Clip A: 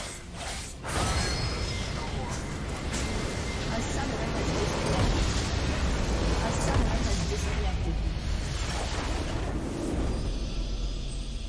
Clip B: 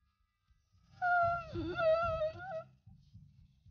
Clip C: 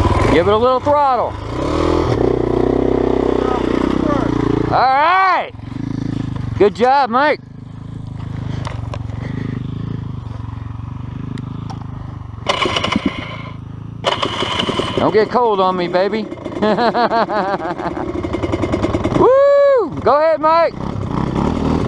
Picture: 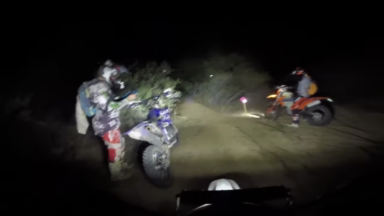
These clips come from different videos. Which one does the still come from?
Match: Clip C